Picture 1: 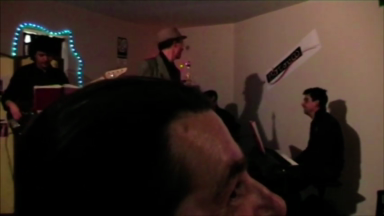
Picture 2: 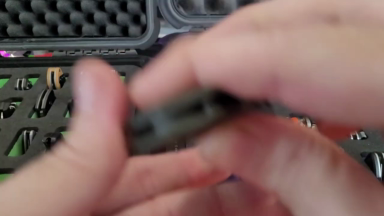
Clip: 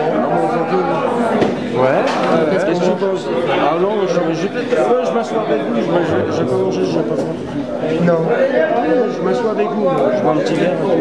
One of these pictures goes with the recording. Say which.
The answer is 1